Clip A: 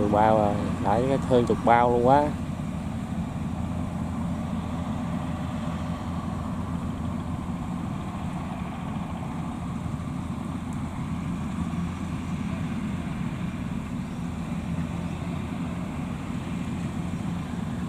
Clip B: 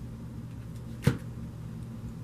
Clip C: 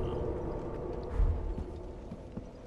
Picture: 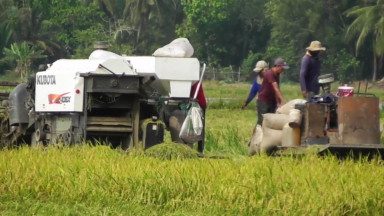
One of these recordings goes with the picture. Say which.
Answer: A